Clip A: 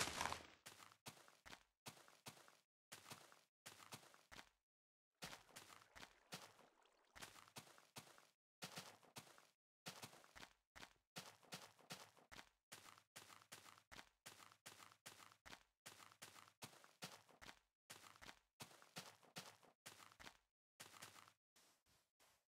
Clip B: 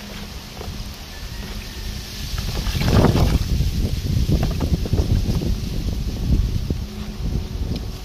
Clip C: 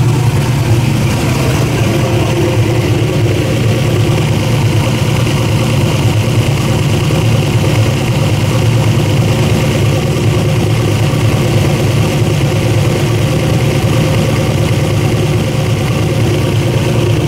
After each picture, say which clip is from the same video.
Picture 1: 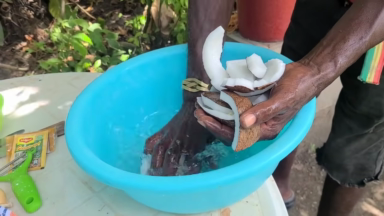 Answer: B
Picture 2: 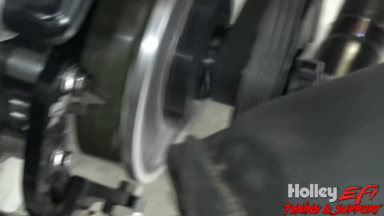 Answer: C